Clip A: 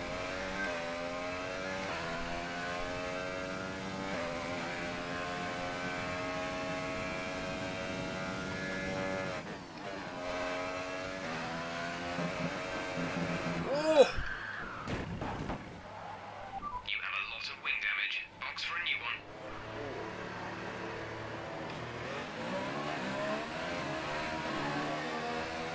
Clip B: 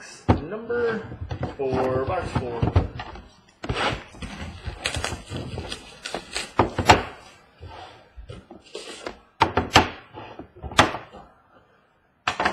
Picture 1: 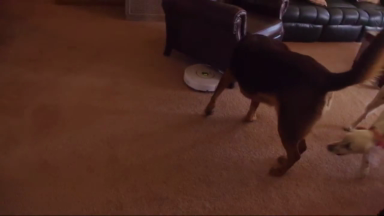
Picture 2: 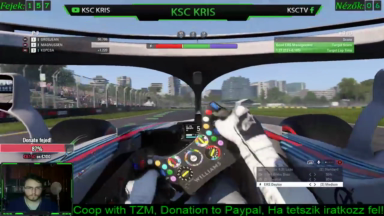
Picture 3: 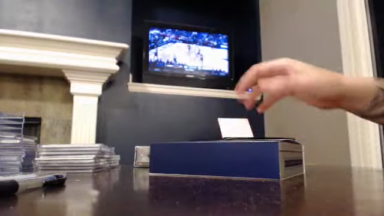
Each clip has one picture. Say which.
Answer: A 2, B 3